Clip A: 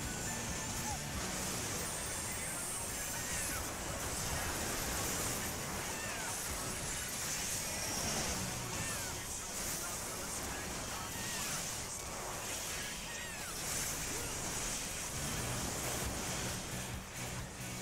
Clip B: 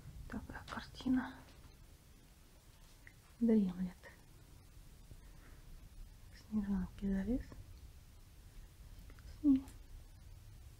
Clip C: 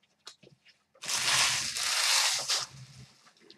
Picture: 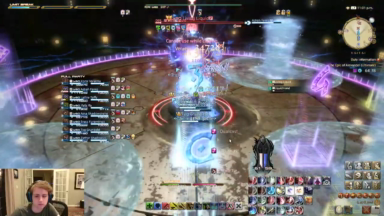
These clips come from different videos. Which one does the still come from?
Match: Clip A